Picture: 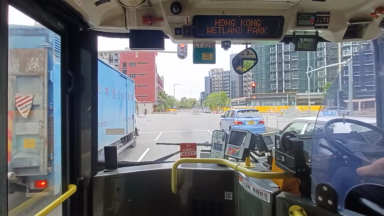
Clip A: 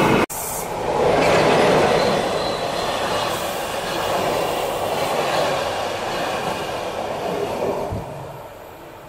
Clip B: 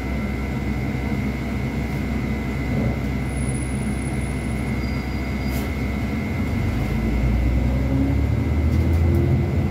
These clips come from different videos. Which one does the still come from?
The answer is B